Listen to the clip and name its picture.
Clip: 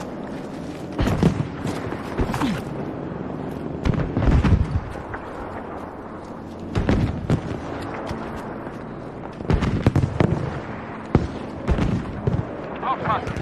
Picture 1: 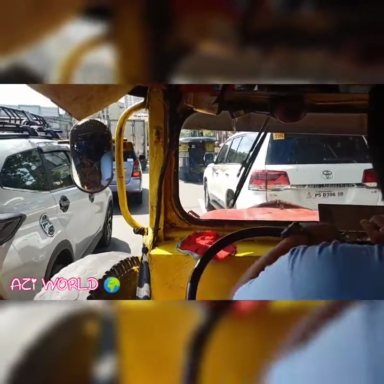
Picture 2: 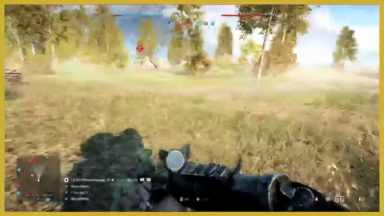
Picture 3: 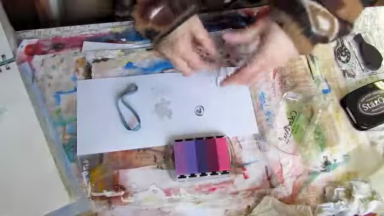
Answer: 2